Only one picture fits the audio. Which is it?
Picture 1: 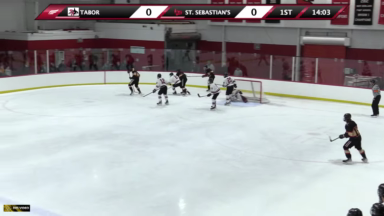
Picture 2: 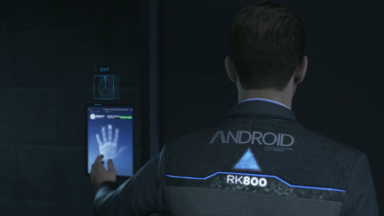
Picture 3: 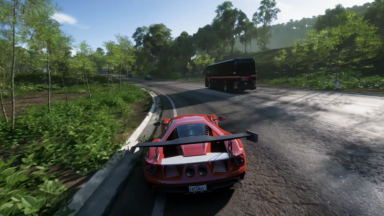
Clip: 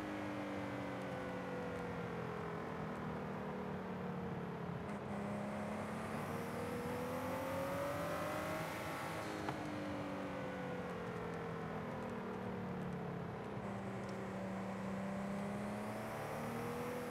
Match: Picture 3